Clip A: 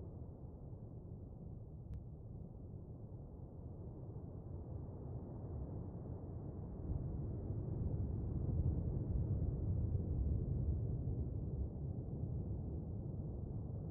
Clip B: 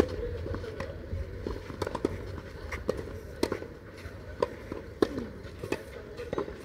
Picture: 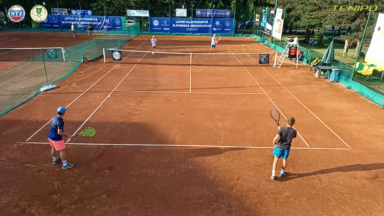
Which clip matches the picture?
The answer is B